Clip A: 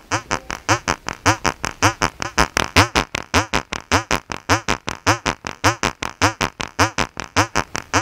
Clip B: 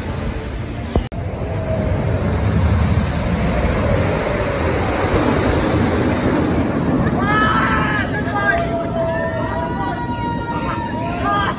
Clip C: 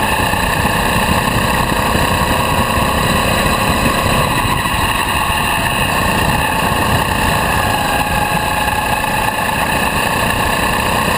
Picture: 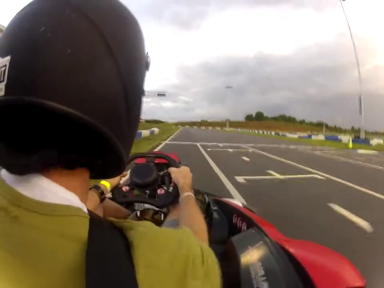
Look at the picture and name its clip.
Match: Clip C